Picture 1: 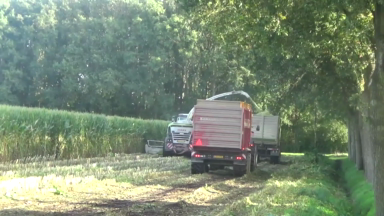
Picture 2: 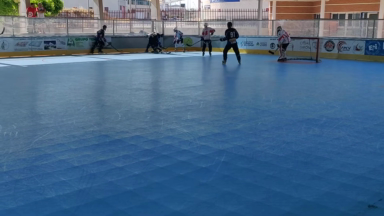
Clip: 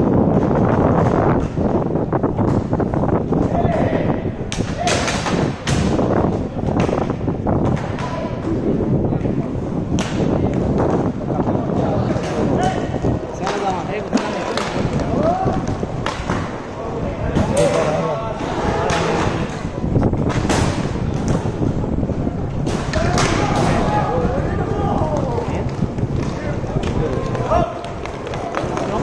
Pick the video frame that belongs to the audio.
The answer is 2